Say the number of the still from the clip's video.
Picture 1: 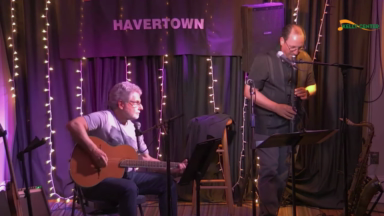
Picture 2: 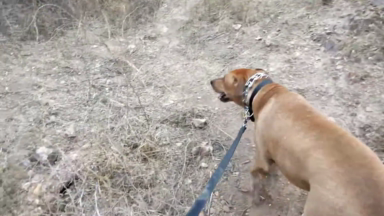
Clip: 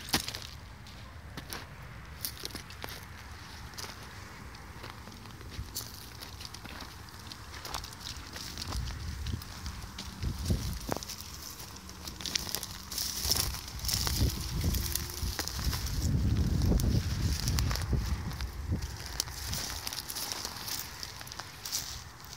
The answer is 2